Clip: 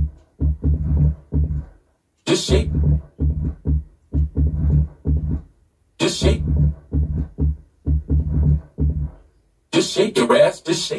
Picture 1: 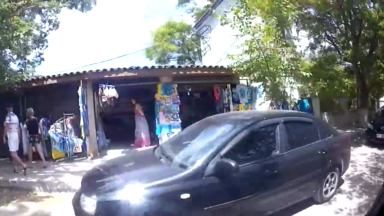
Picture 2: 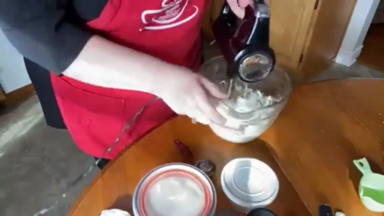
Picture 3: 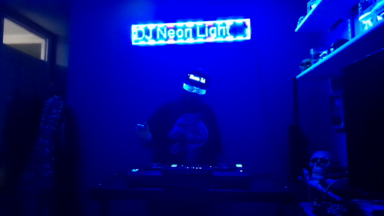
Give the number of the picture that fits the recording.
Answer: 3